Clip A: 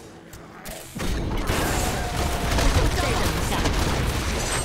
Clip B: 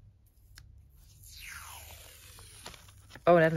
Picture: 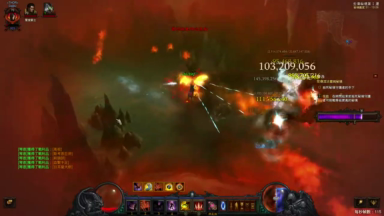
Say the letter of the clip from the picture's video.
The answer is A